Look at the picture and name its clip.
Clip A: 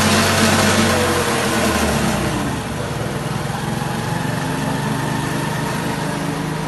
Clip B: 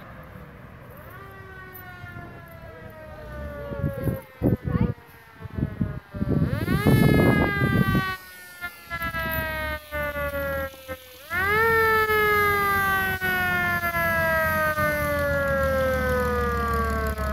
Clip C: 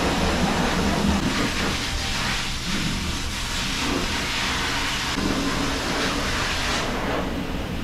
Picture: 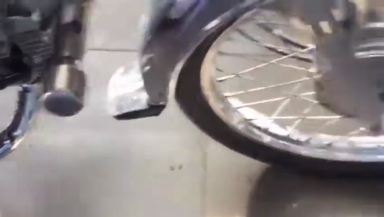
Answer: A